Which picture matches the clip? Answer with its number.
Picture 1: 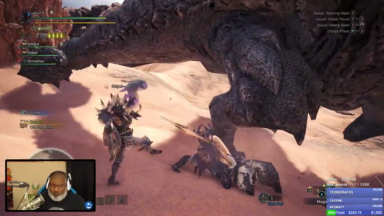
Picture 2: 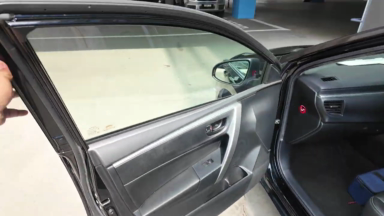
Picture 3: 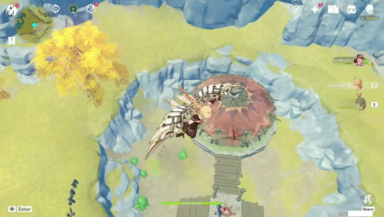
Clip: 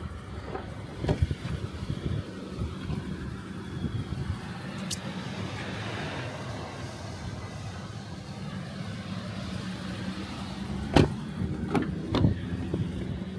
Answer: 2